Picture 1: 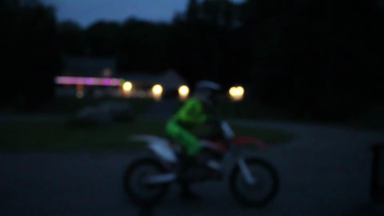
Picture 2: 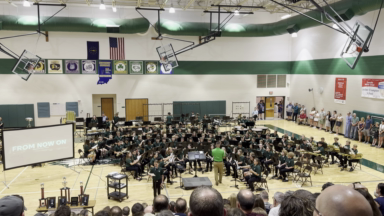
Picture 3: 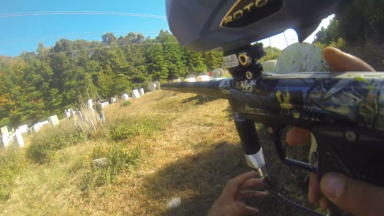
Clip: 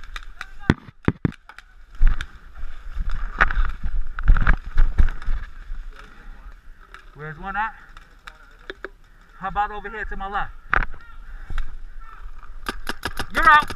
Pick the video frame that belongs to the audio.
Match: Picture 3